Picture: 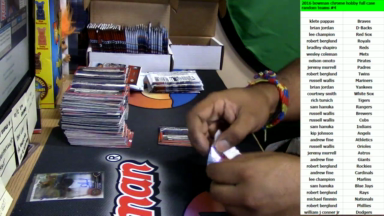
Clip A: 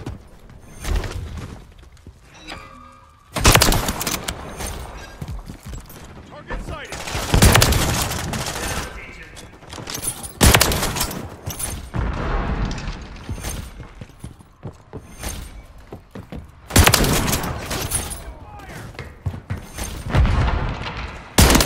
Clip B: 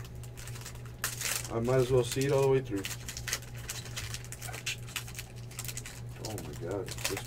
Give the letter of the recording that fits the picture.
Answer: B